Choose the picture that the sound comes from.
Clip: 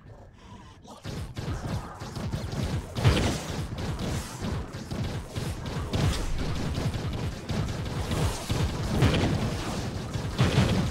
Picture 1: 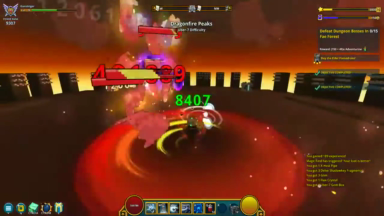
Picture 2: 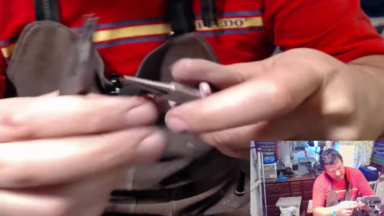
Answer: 1